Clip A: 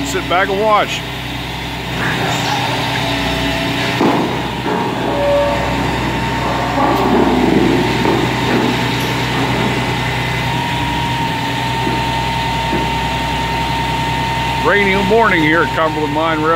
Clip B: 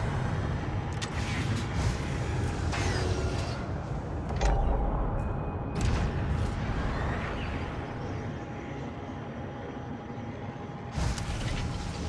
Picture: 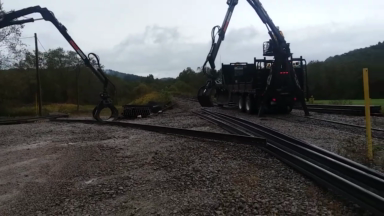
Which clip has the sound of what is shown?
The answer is A